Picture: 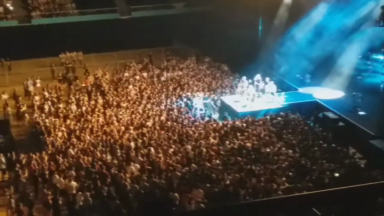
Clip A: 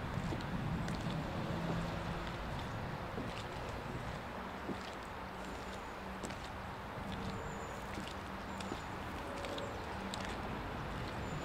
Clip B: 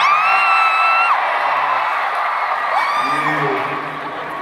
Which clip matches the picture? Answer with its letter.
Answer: B